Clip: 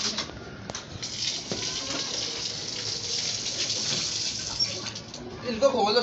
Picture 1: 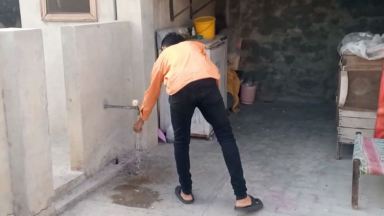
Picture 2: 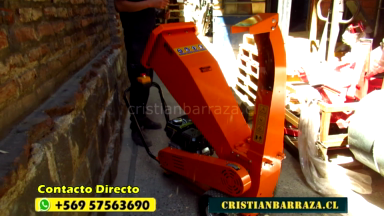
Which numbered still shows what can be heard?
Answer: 1